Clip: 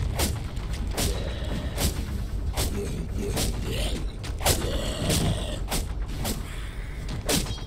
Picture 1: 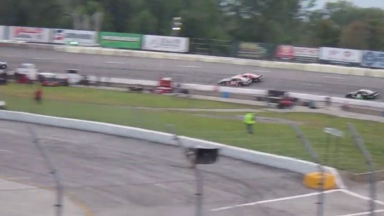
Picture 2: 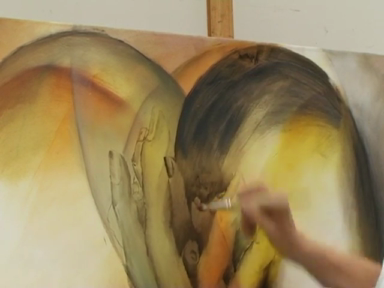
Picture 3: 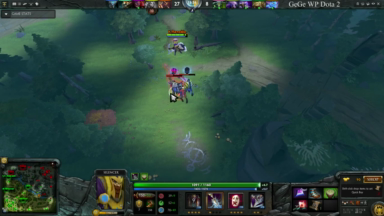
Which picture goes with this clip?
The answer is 3